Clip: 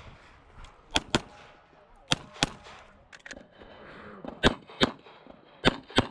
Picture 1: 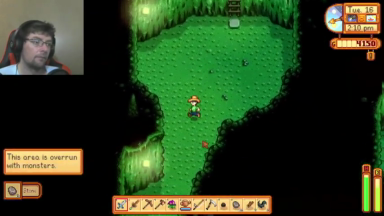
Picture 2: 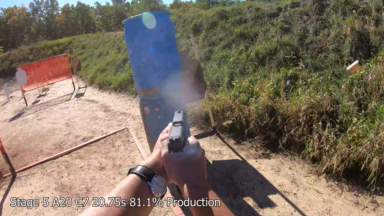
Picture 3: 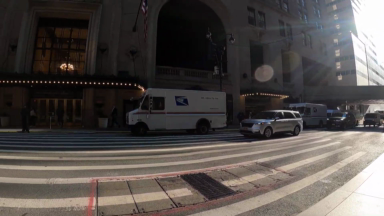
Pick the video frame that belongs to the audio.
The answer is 2